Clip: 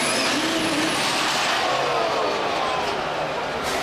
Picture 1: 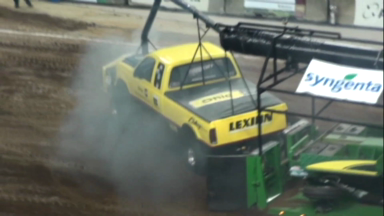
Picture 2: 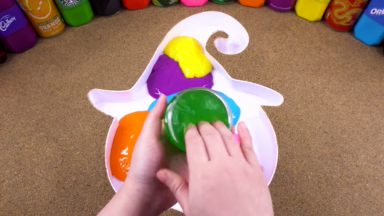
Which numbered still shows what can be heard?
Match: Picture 1